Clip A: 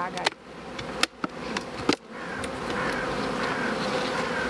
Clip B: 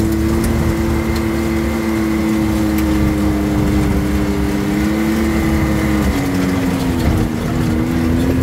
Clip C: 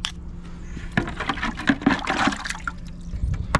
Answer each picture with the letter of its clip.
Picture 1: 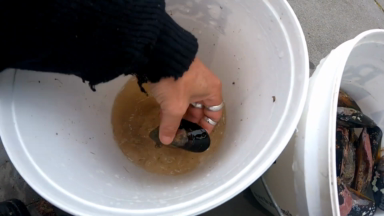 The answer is C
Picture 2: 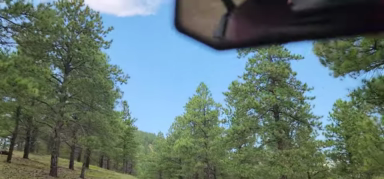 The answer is B